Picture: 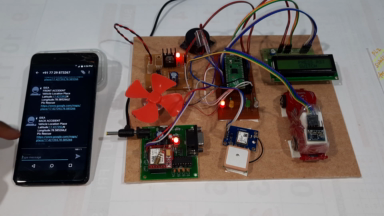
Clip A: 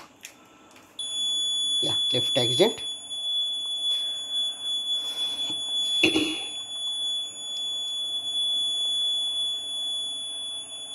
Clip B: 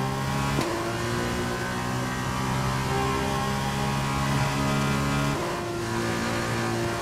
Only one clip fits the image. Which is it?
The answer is A